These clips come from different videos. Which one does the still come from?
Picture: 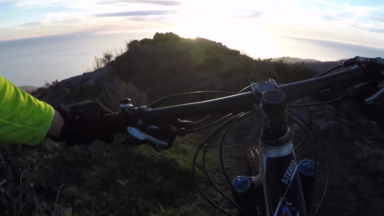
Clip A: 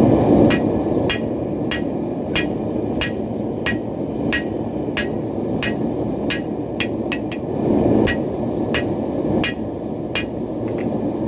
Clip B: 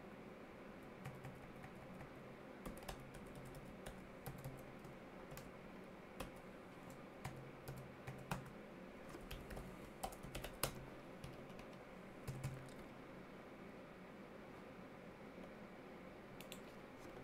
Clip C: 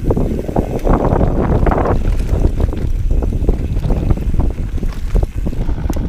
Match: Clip C